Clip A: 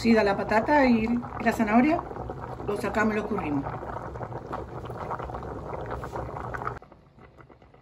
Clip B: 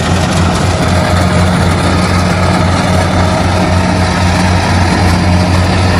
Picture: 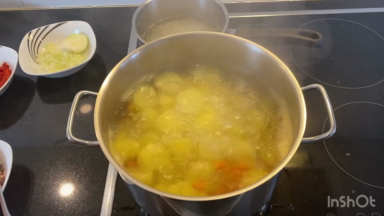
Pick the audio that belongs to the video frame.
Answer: A